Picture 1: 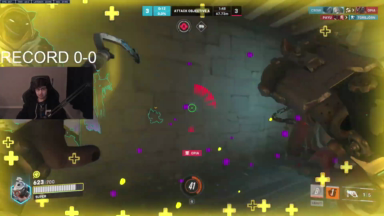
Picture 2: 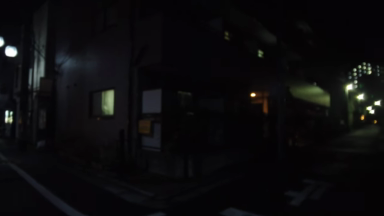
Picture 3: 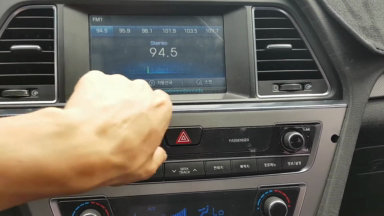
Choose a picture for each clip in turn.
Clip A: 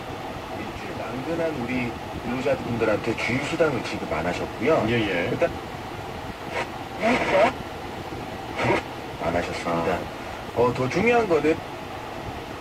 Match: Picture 3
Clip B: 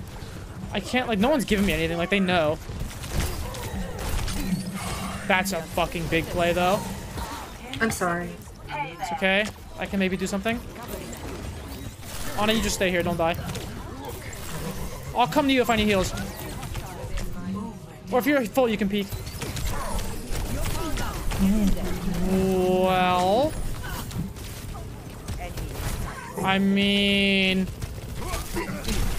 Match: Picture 1